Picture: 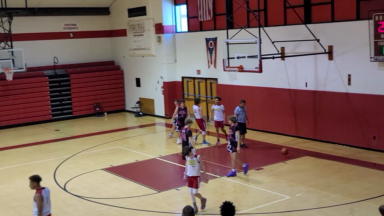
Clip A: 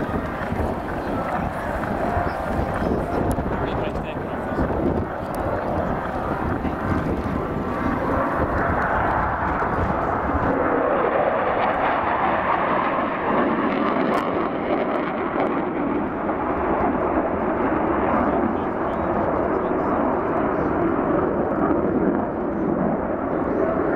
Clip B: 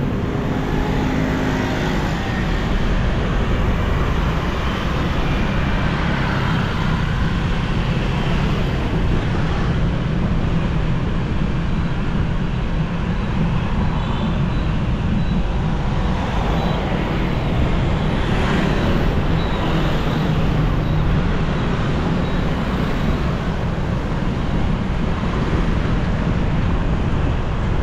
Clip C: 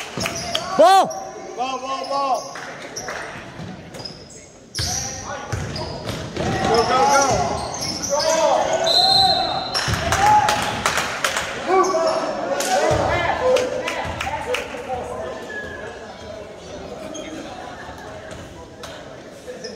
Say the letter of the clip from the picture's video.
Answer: C